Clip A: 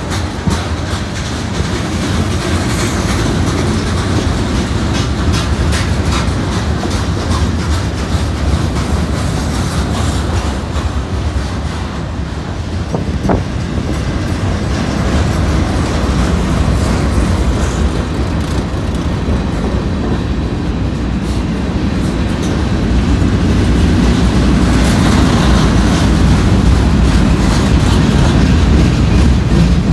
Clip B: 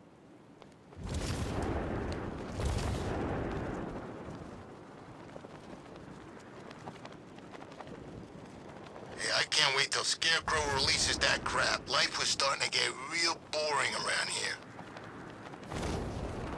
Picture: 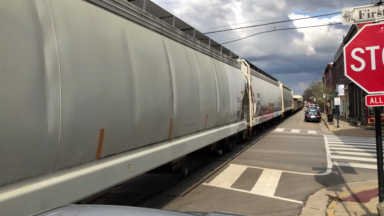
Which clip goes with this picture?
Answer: A